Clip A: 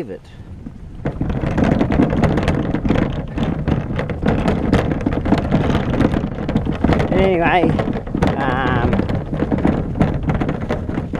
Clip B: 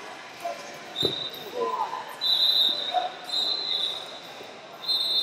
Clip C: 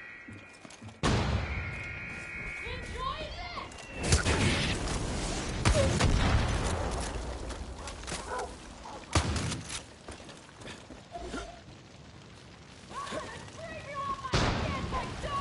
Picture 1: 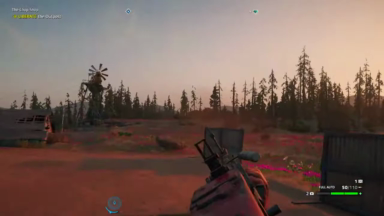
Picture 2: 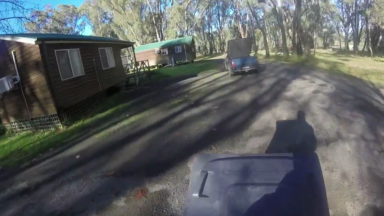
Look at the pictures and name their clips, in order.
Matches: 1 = C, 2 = A